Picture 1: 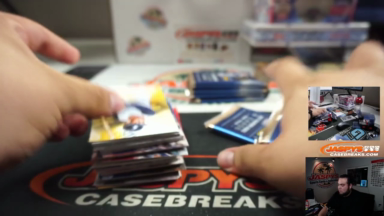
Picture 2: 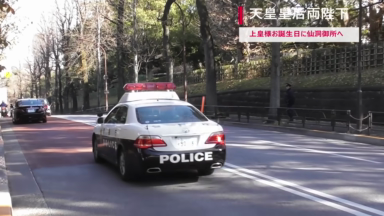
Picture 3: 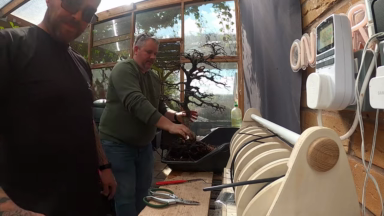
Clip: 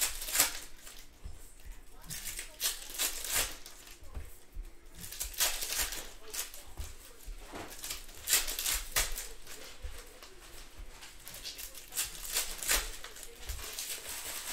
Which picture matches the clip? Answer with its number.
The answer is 1